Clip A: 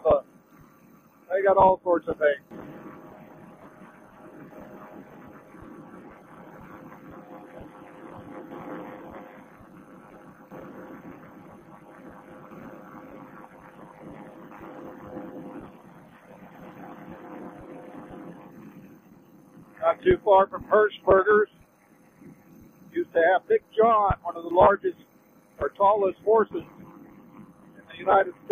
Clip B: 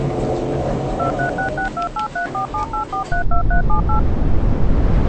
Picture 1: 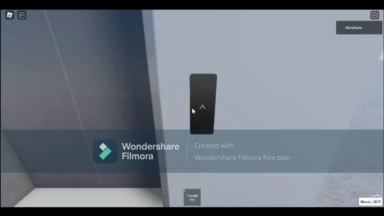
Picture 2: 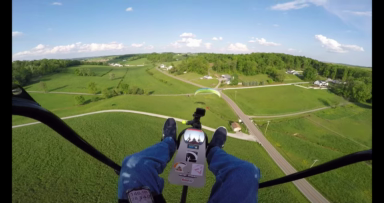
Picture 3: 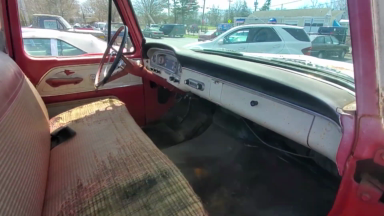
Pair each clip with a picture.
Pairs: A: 2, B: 1